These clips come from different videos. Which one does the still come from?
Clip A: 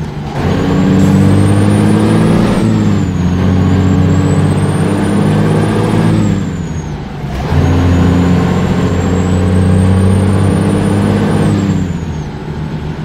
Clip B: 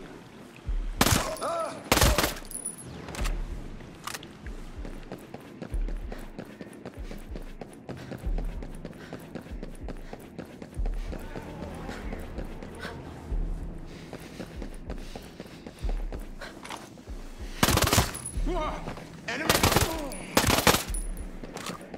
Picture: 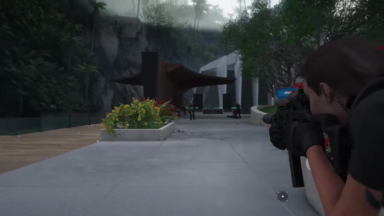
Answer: B